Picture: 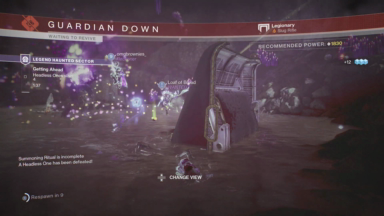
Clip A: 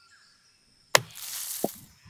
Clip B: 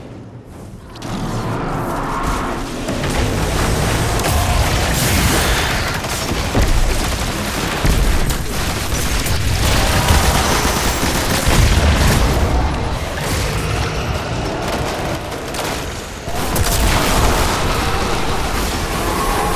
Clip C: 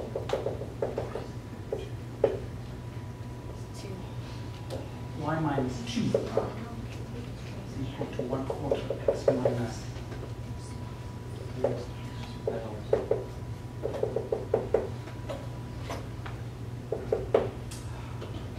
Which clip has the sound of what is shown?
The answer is B